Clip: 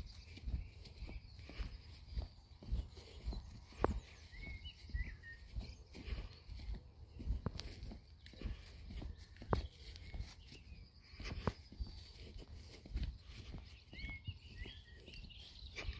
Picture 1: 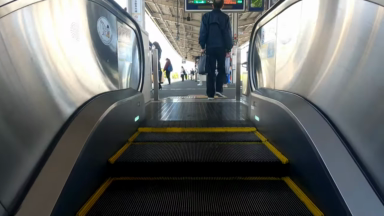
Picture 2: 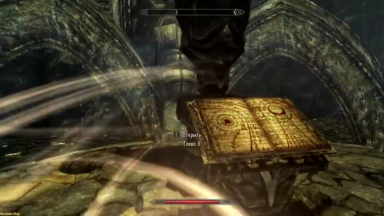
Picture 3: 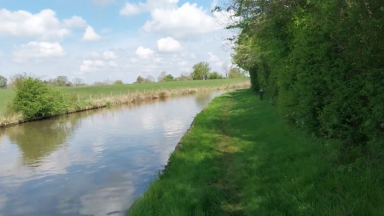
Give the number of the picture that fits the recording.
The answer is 3